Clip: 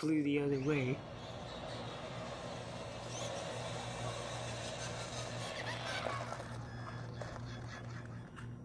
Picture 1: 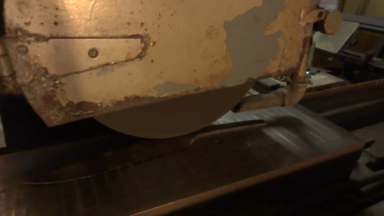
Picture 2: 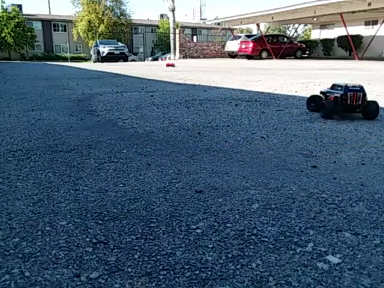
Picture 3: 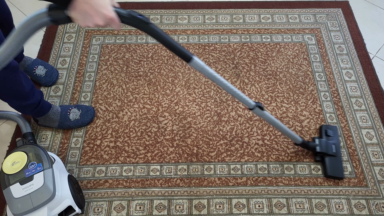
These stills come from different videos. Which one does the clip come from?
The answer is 2